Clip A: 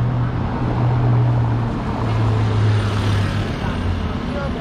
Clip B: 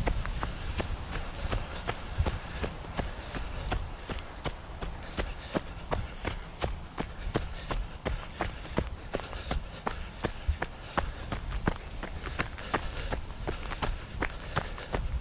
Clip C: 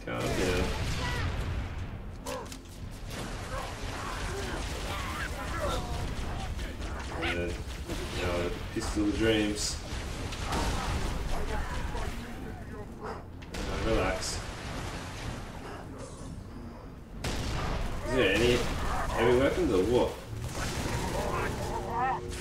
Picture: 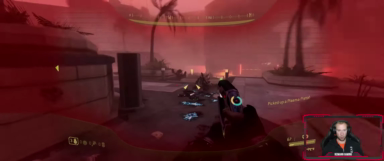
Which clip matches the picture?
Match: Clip C